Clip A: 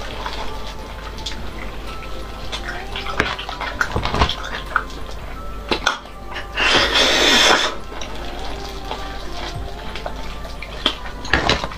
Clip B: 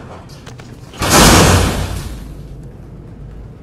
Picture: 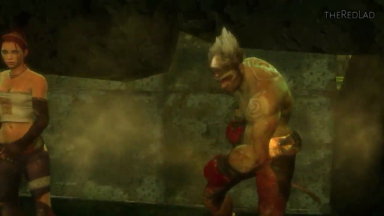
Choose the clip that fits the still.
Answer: B